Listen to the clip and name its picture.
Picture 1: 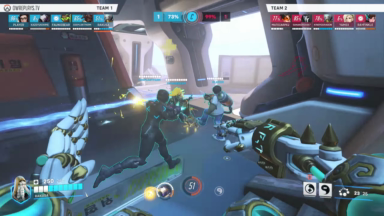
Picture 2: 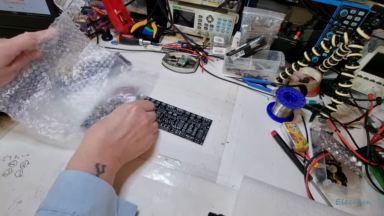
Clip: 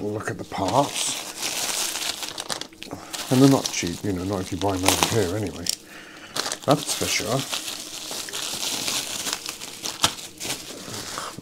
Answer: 2